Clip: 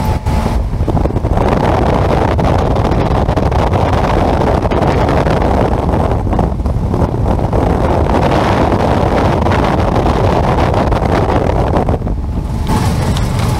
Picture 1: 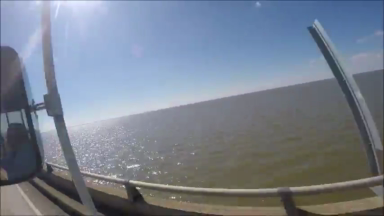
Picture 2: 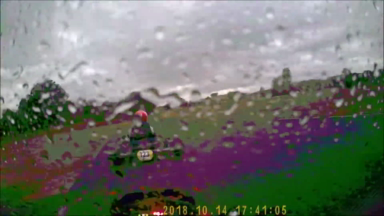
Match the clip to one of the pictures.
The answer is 1